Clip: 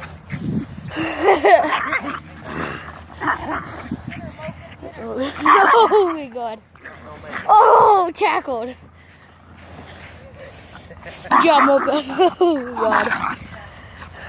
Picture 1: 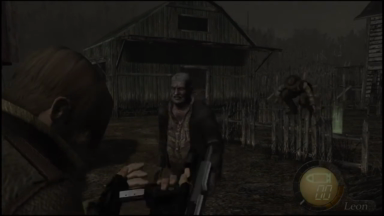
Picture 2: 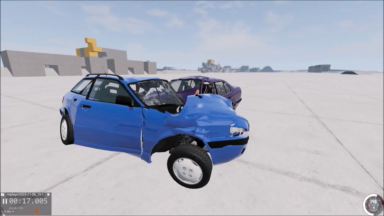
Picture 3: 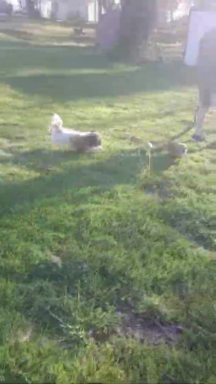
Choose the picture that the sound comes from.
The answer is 3